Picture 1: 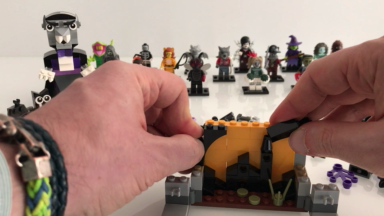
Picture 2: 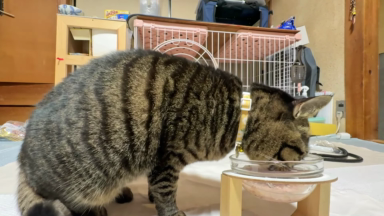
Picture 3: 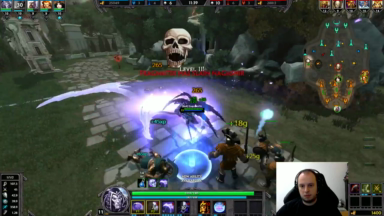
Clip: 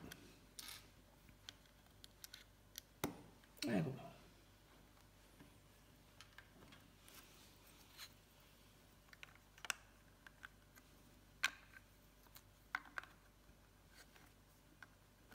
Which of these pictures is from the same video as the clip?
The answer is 1